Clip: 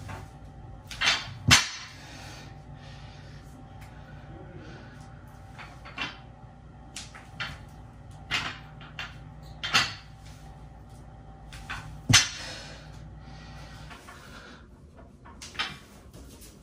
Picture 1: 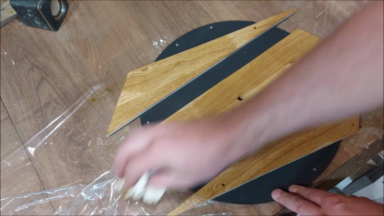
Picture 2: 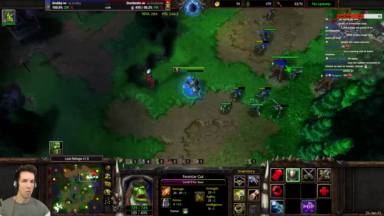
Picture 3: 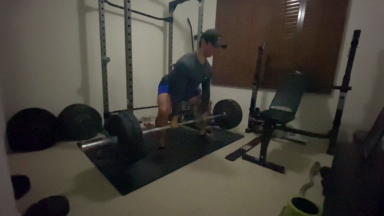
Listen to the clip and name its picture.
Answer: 3